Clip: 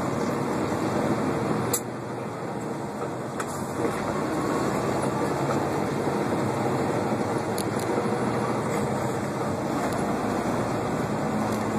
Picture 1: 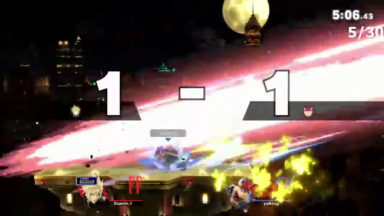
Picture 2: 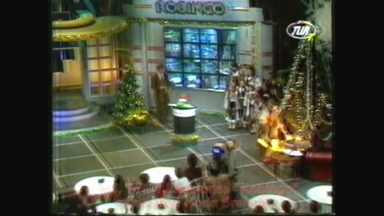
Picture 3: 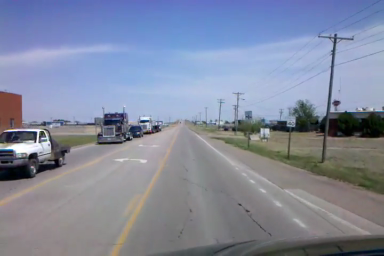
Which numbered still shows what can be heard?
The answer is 3